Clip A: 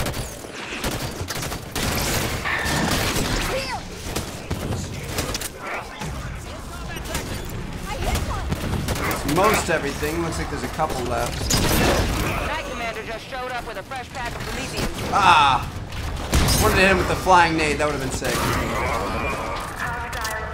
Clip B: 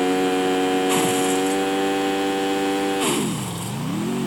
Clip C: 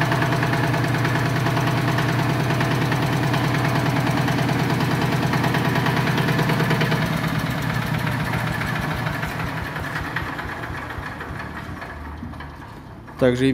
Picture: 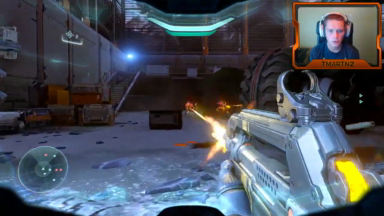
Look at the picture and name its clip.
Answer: A